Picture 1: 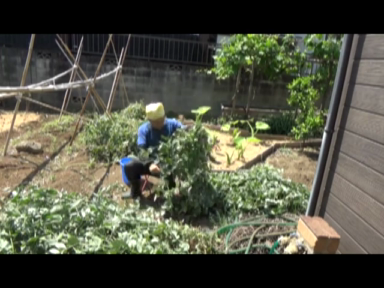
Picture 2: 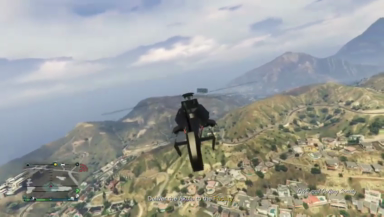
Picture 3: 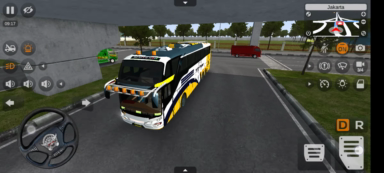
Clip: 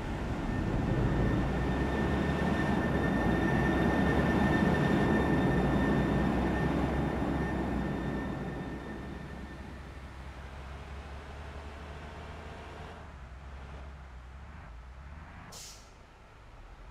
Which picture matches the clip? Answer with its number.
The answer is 3